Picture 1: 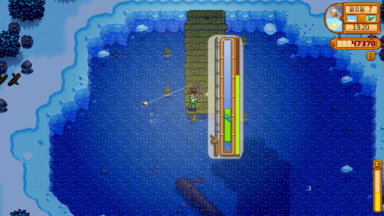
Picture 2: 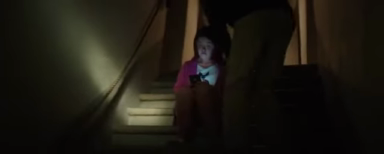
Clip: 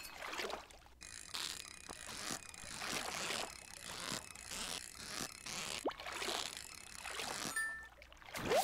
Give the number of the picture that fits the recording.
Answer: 1